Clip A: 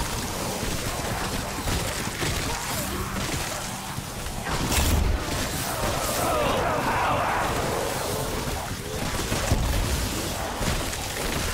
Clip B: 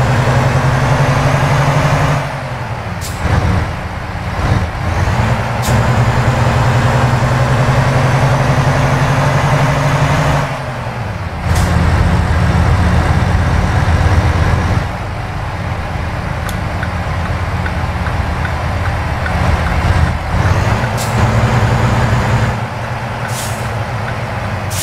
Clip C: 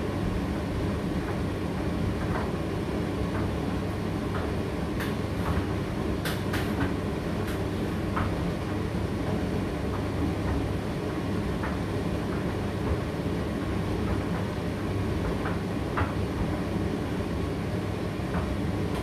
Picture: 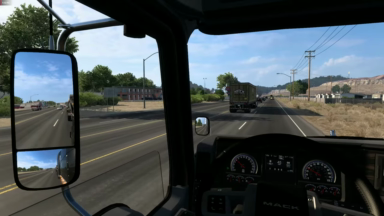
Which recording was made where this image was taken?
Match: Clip B